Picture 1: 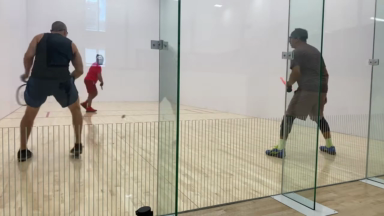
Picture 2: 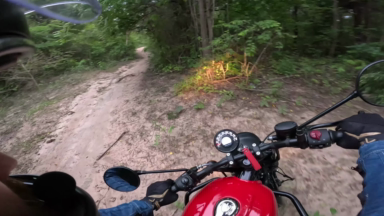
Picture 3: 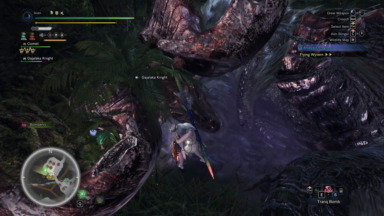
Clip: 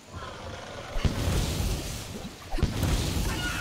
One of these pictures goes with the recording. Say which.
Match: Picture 3